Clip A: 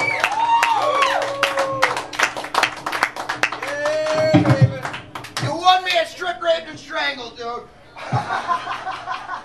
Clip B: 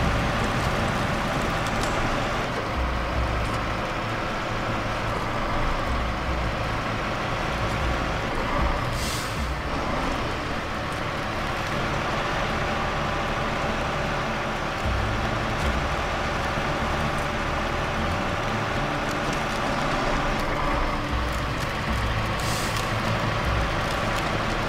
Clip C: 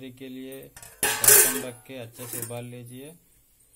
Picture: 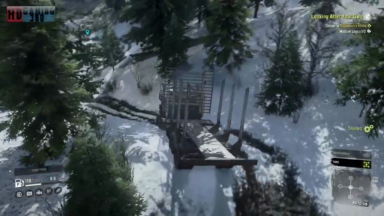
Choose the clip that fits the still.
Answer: B